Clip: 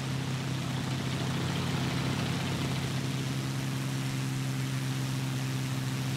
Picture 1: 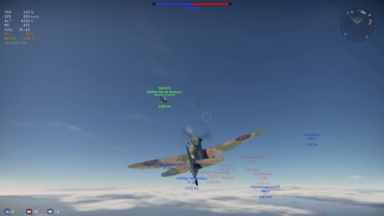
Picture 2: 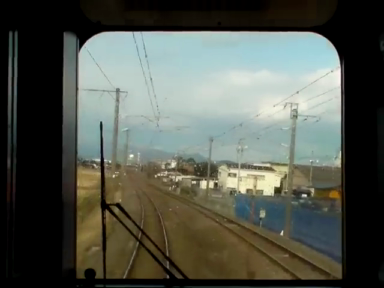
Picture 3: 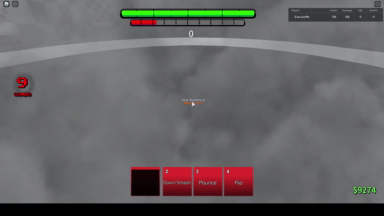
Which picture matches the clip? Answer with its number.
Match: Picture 1